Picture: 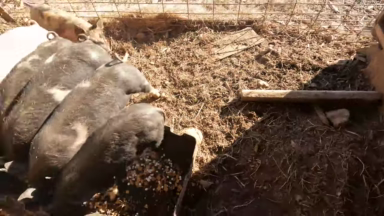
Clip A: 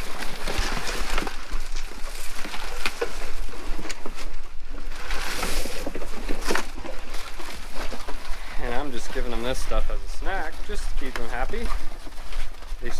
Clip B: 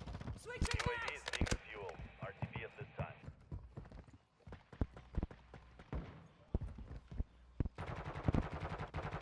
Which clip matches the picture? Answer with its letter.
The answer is A